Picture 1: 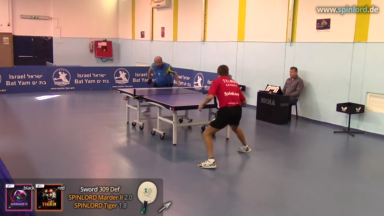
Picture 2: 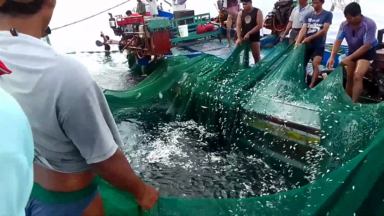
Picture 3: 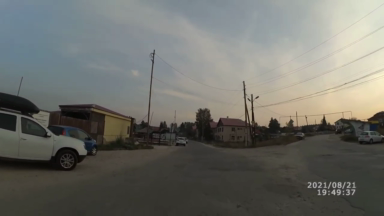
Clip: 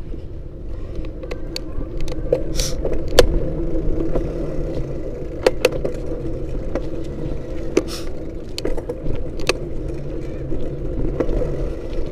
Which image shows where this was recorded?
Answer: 3